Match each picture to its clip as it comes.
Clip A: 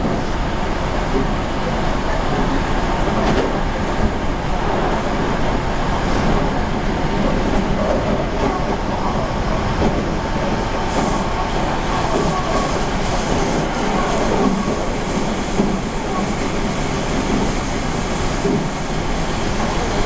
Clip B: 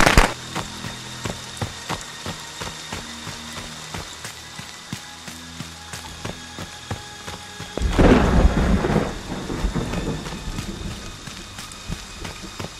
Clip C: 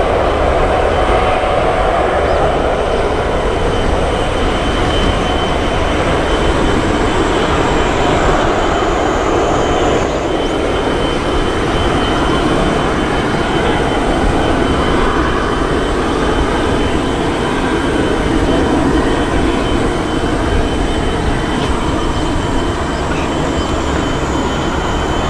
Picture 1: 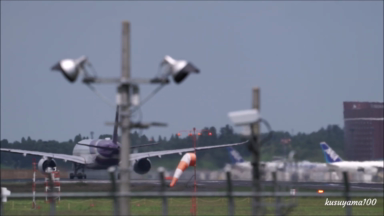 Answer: C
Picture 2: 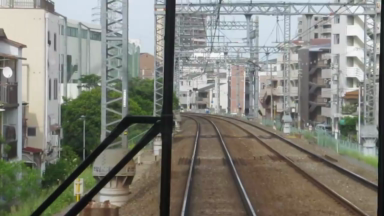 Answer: A